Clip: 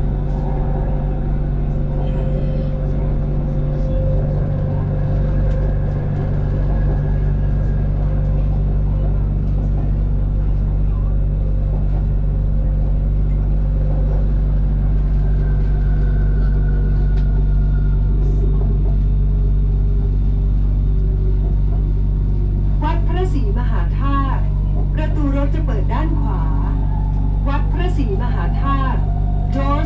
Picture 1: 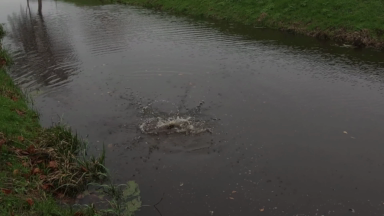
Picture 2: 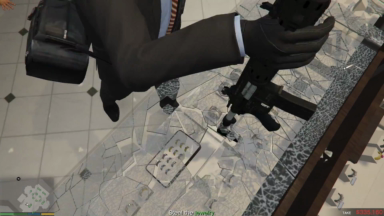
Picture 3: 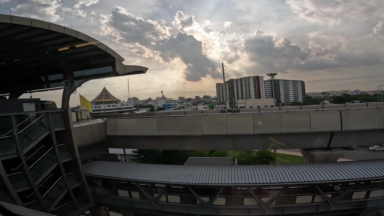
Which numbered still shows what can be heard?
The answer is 3